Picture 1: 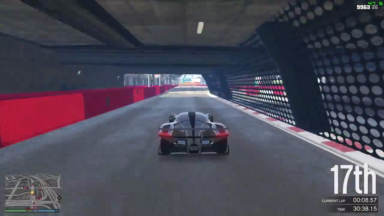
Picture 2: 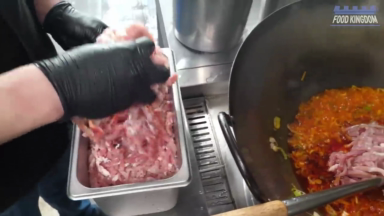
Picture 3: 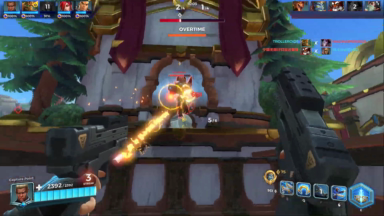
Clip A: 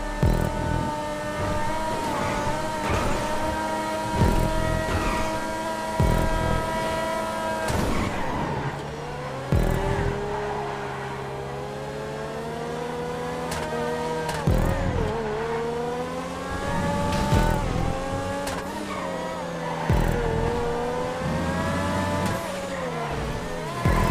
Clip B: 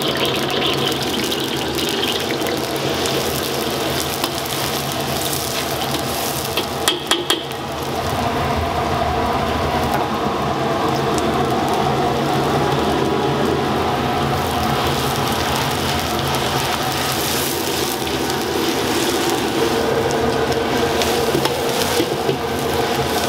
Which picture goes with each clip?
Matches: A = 1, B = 2